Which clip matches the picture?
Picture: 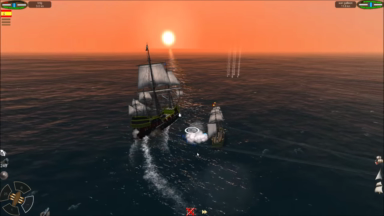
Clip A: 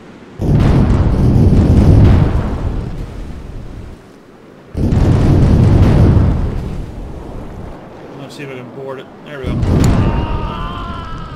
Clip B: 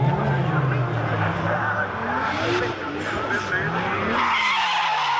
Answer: A